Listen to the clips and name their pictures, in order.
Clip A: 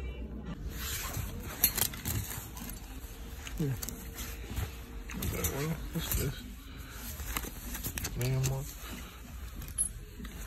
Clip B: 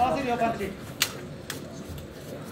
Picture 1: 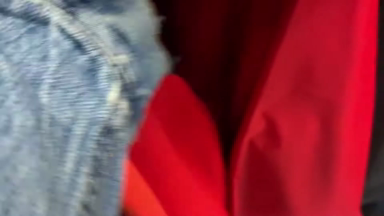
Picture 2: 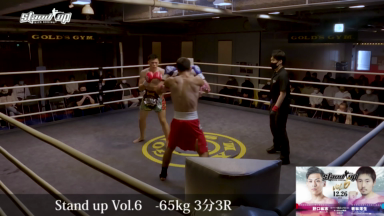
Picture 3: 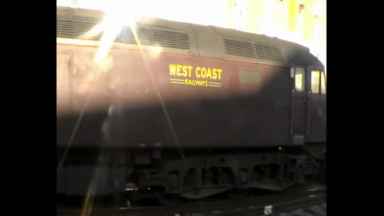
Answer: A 1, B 2